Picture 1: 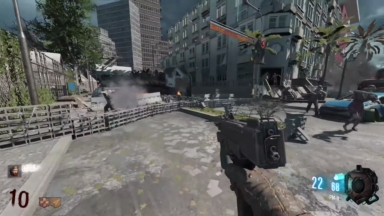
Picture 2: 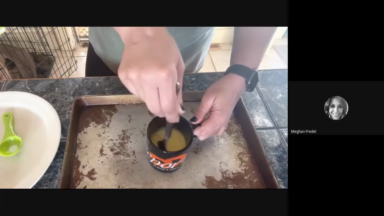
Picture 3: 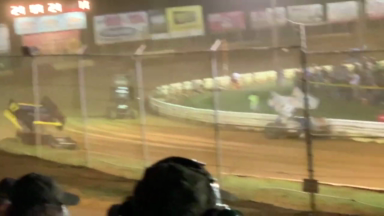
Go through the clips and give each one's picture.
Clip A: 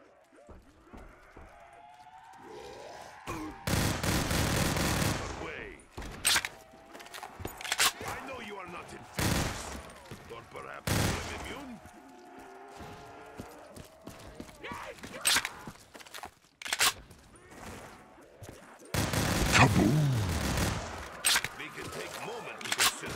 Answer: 1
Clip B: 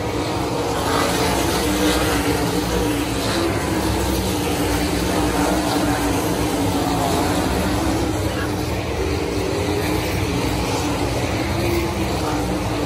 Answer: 3